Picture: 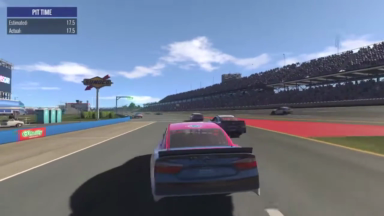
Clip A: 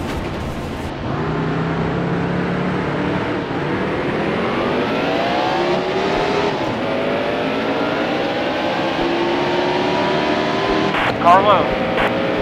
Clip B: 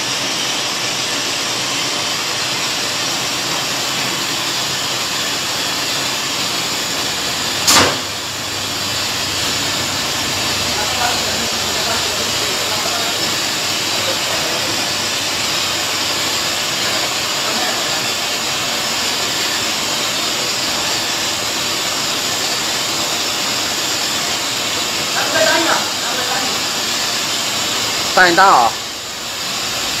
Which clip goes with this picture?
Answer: A